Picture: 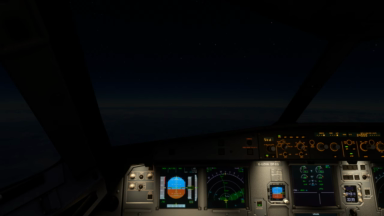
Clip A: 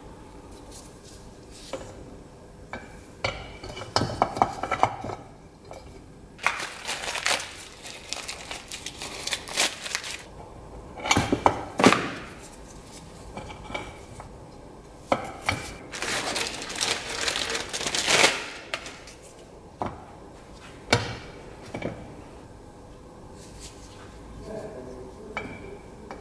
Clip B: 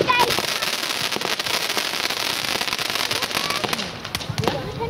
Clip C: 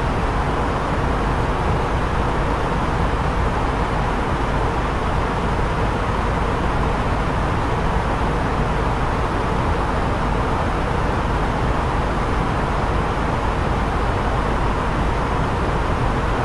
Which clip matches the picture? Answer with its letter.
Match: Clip C